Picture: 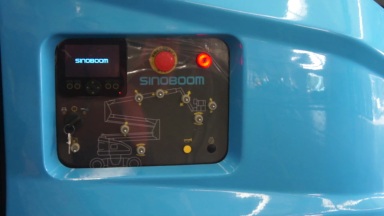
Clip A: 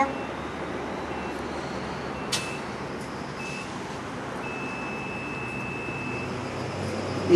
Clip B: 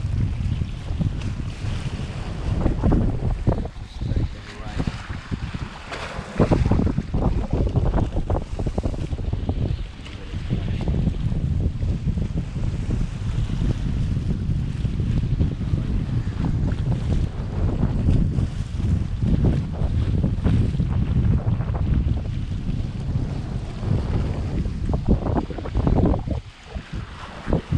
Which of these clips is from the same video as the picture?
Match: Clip A